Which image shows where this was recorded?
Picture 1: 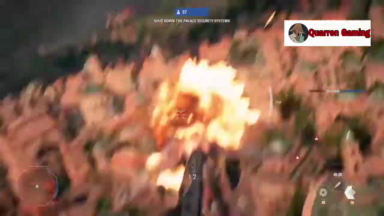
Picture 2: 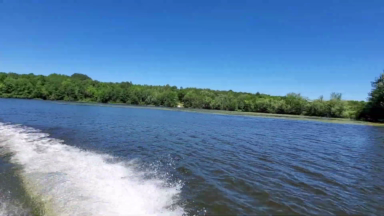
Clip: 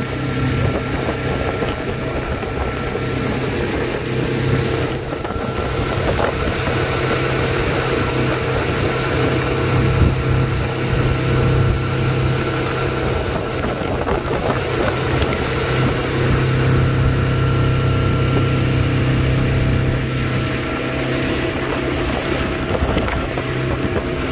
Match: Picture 2